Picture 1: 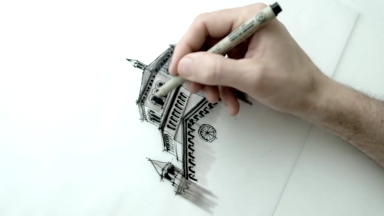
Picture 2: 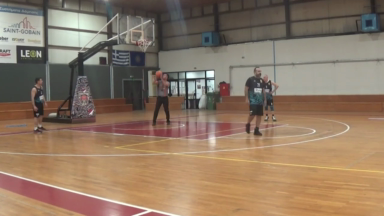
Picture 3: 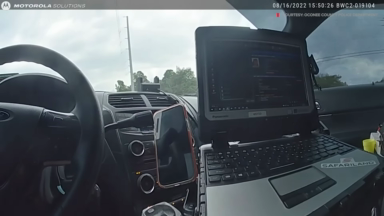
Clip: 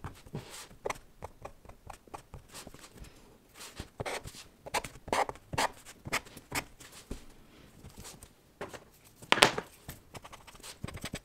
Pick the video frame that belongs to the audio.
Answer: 1